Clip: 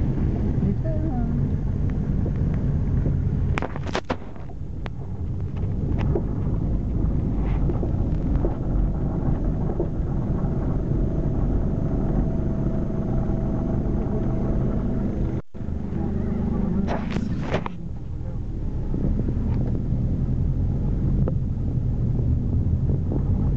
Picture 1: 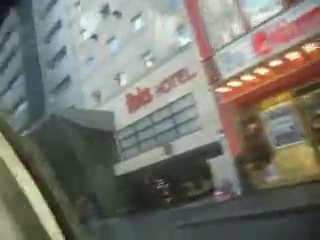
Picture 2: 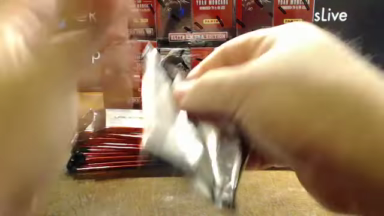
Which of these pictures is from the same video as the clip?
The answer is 1